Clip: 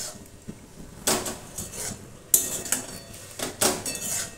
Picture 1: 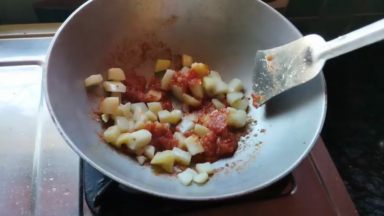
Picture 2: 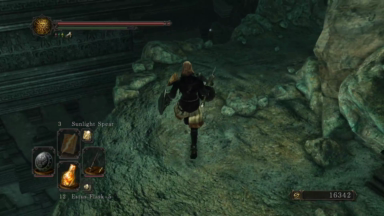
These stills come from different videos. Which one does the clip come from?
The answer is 1